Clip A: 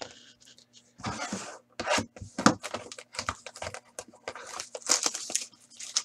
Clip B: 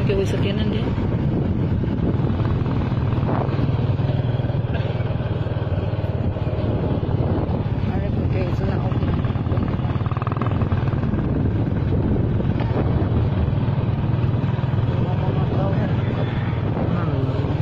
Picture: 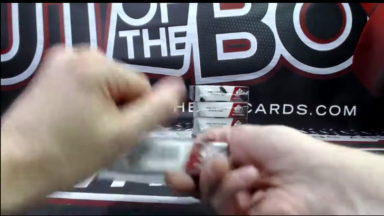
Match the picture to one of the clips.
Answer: A